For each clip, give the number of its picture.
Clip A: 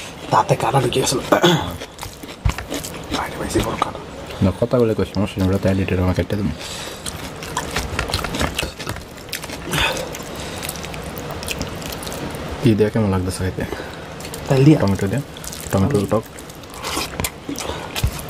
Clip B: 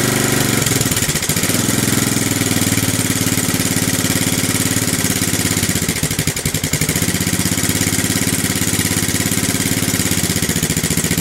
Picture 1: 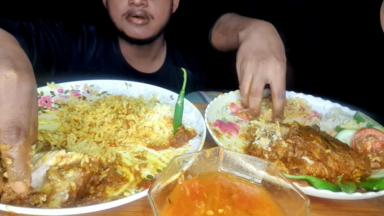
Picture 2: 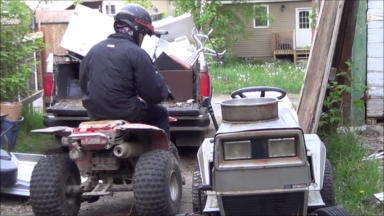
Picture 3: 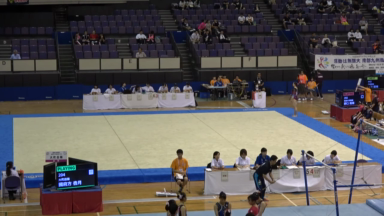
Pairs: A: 1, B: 2